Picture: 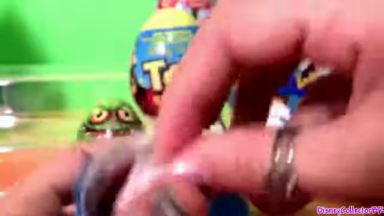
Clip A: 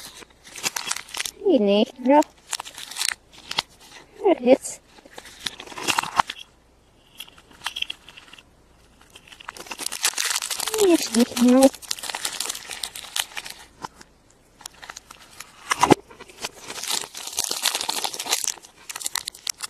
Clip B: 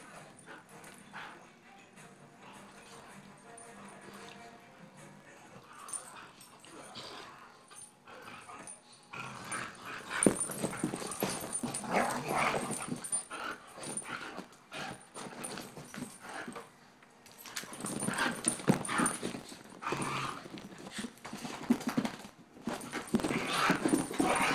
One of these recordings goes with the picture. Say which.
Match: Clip A